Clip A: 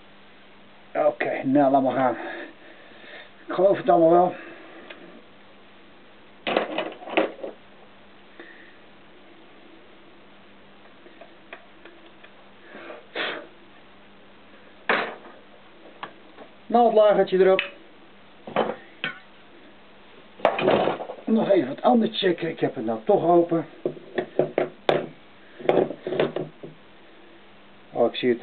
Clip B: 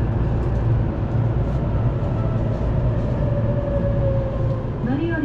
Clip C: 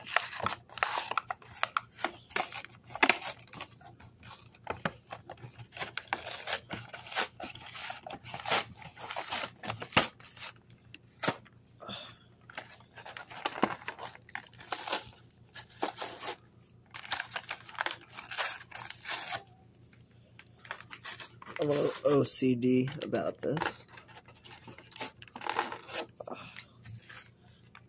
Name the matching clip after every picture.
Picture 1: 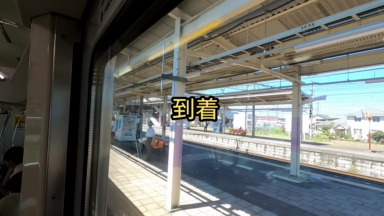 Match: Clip B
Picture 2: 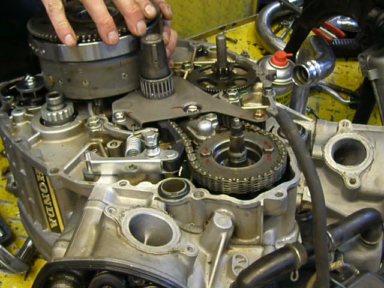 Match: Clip A